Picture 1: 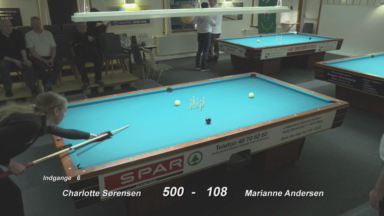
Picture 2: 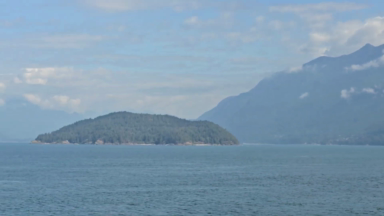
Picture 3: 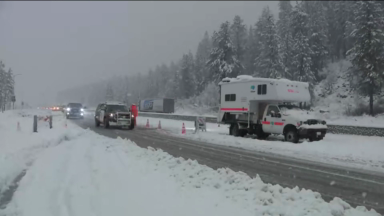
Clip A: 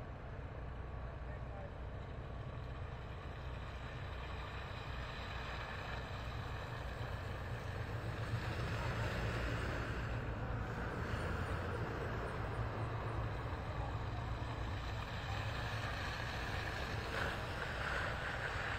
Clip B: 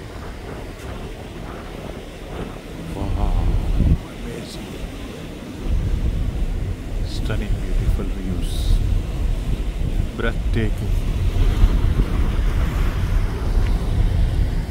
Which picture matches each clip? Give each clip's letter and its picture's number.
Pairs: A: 3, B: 2